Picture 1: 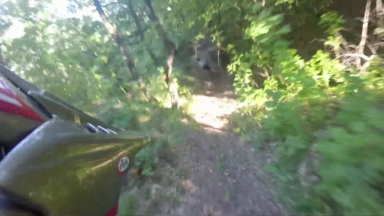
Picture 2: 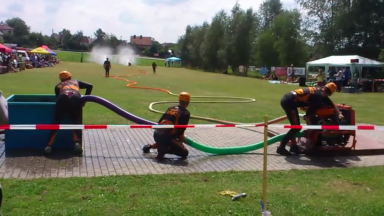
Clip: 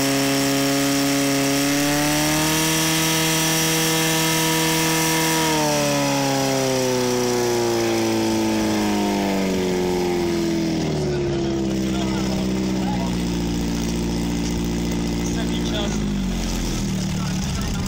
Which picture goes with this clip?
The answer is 2